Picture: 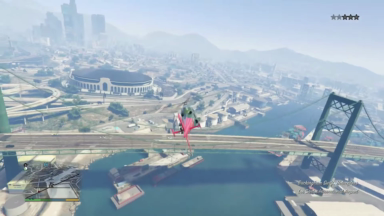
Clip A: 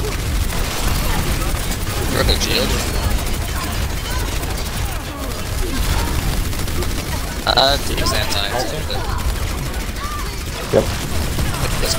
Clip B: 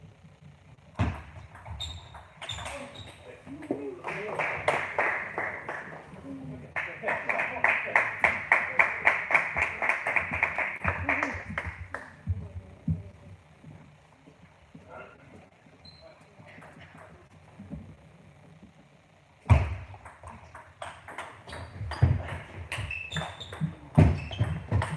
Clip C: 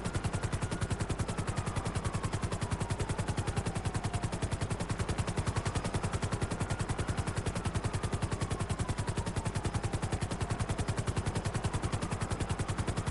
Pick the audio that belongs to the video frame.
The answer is C